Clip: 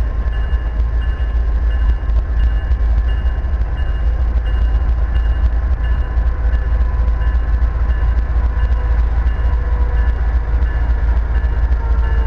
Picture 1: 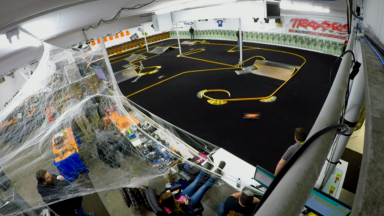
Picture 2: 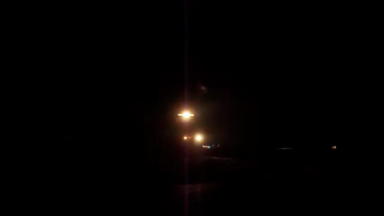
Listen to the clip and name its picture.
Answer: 2